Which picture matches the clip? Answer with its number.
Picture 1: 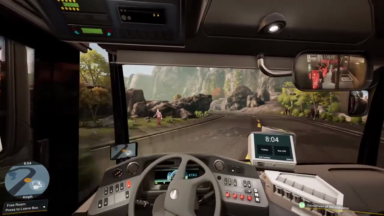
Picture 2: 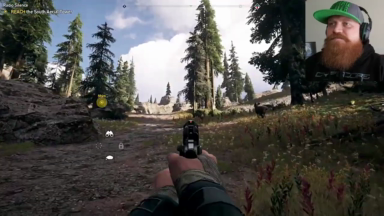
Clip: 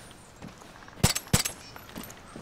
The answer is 2